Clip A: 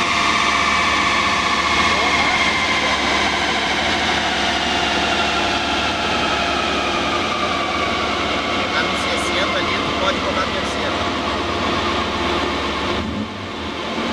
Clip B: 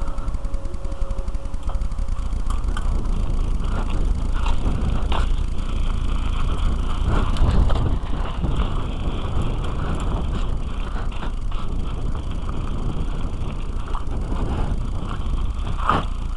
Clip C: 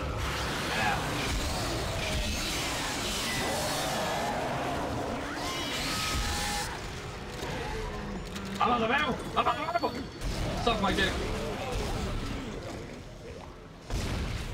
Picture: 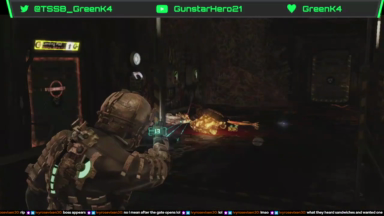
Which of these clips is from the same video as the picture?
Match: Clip C